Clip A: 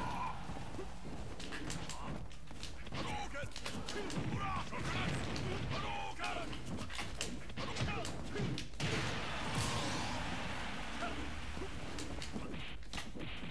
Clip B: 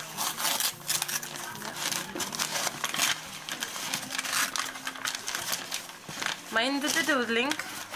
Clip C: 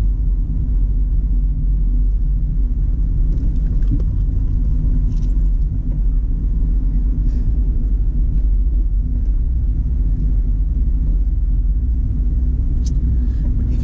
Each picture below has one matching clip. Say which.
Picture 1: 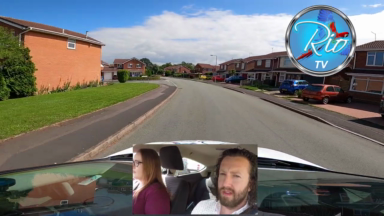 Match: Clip C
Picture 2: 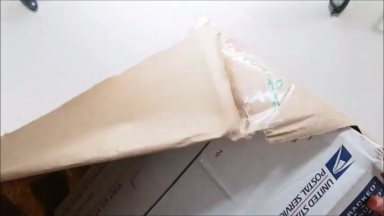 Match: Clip B